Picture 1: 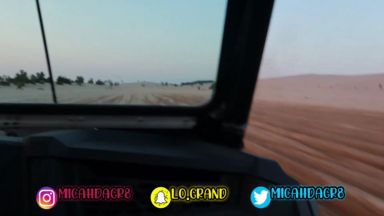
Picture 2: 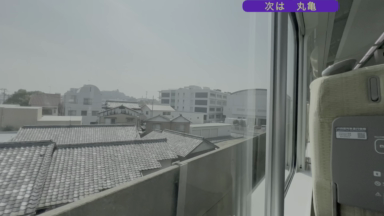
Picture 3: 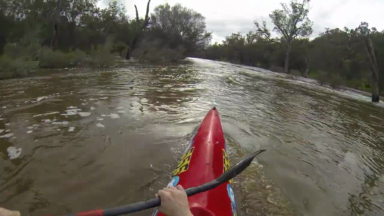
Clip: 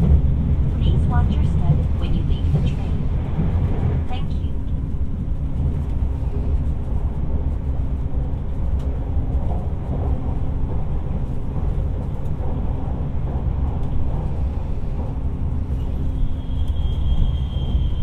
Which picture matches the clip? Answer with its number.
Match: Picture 2